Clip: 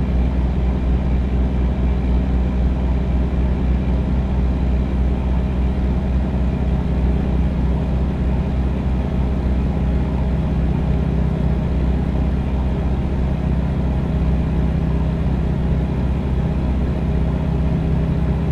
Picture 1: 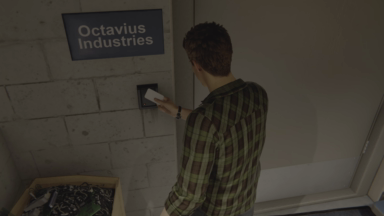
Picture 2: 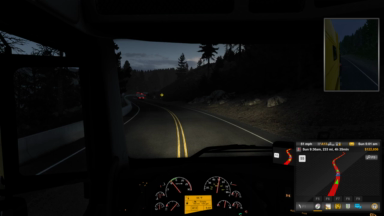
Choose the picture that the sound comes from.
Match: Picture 2